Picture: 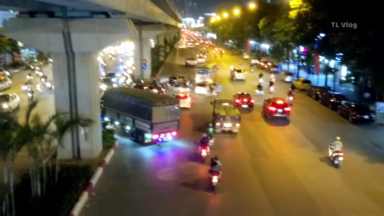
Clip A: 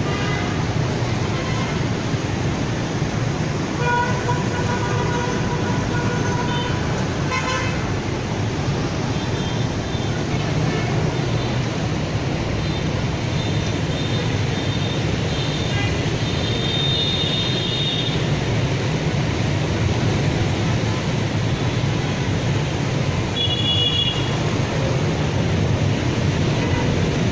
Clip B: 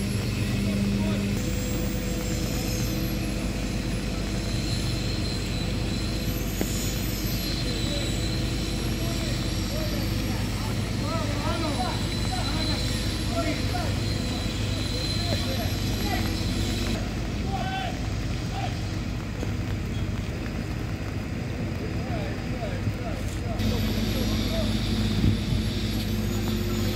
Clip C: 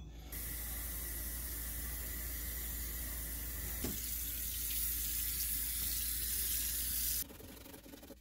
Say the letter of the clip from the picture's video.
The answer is A